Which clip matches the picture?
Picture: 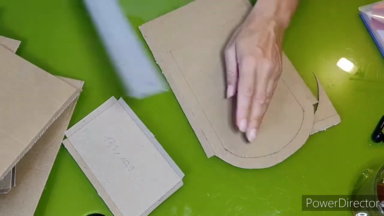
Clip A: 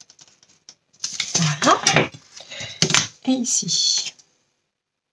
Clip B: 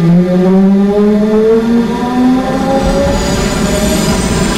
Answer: A